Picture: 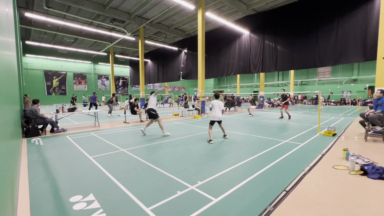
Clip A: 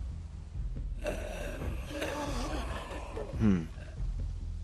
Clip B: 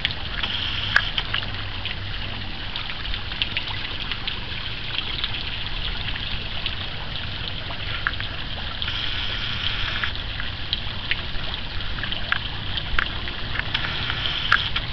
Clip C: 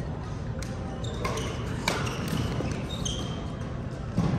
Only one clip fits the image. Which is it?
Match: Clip C